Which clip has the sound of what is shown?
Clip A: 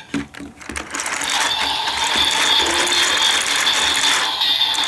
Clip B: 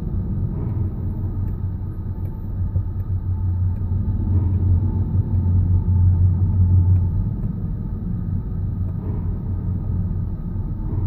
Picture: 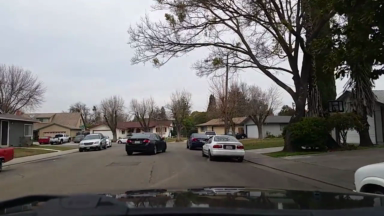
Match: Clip B